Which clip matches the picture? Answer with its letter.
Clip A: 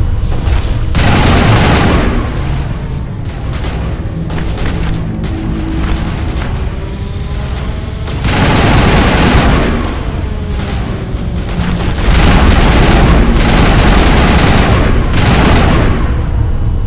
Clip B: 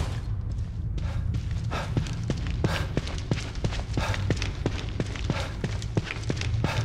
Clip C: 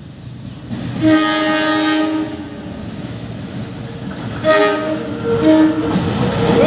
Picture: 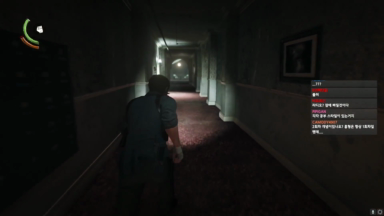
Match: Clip B